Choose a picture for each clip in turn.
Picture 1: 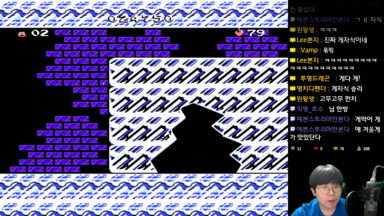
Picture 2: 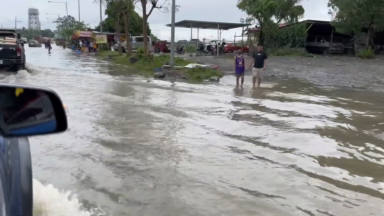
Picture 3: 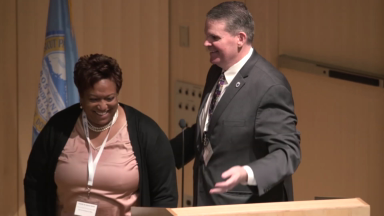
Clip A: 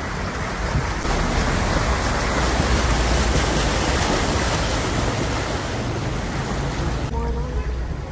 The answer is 2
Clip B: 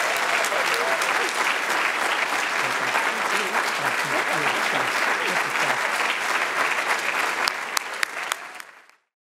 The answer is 3